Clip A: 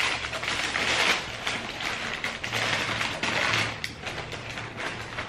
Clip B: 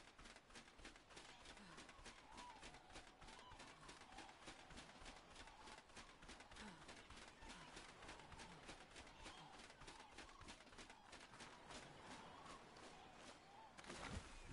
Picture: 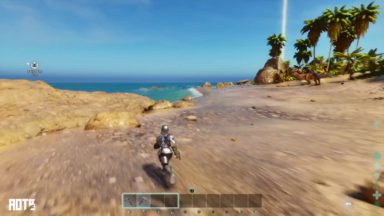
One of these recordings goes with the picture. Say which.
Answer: B